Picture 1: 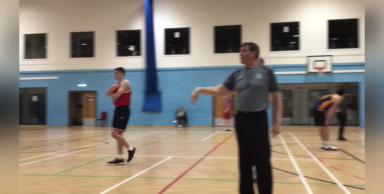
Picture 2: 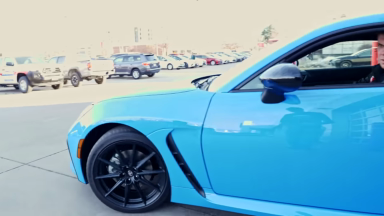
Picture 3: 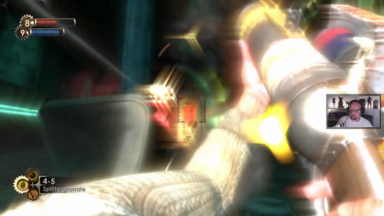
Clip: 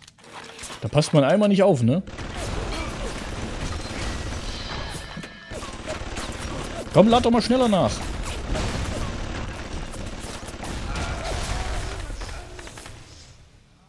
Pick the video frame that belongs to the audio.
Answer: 3